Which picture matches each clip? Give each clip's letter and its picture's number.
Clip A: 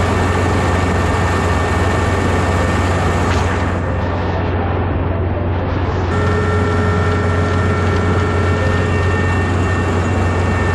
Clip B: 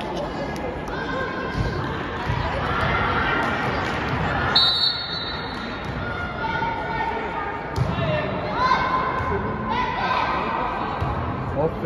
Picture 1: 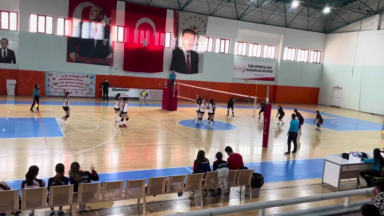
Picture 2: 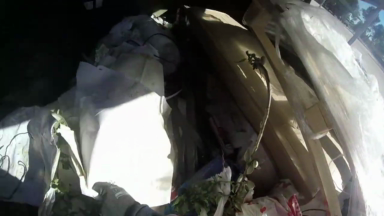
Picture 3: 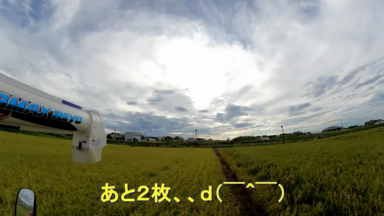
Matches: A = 3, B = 1